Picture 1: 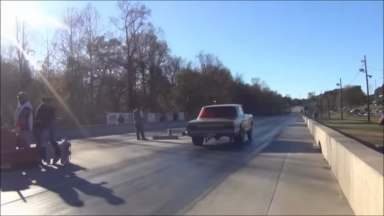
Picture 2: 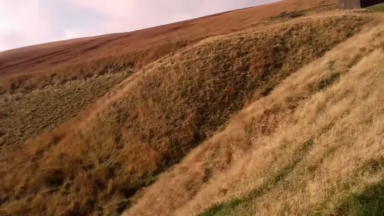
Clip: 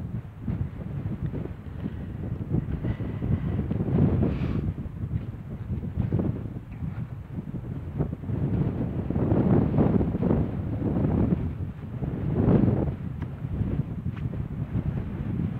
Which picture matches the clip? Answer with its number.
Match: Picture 2